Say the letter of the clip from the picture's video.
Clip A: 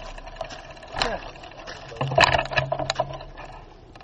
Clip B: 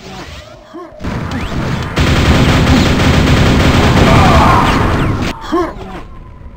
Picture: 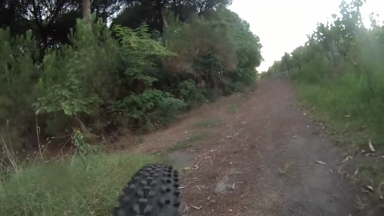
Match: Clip A